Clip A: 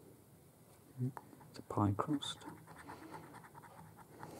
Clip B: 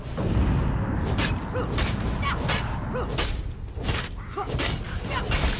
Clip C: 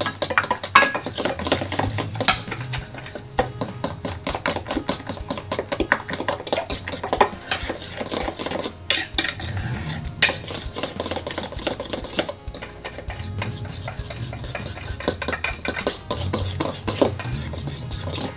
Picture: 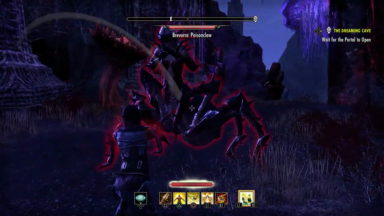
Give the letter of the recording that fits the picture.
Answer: B